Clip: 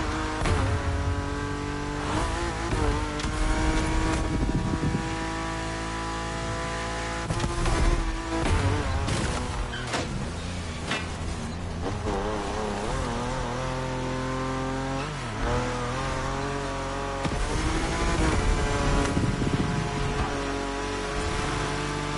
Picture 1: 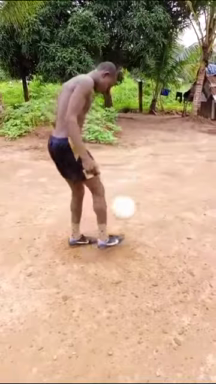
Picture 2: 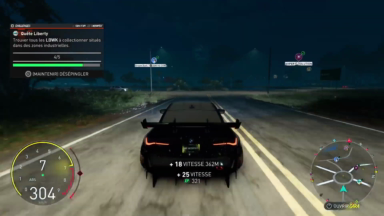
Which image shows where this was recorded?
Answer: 2